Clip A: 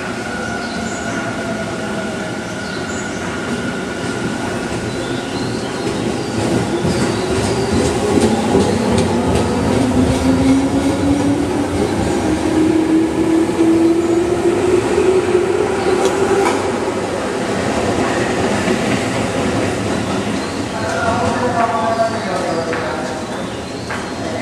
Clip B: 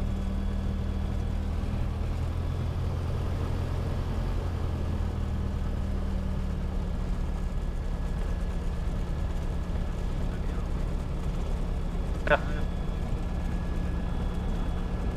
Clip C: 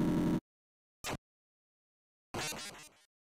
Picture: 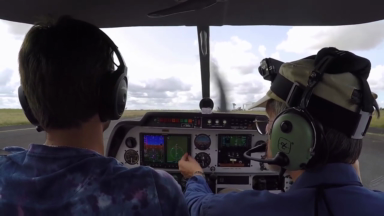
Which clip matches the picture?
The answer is B